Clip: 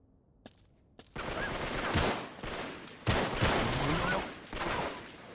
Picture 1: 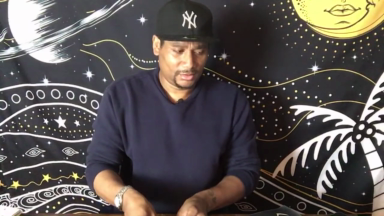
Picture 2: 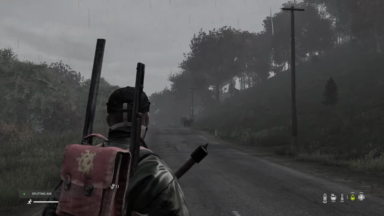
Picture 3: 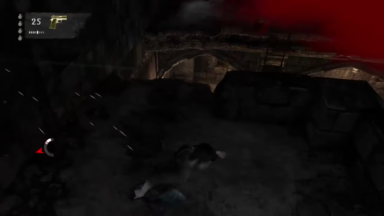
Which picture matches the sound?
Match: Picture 3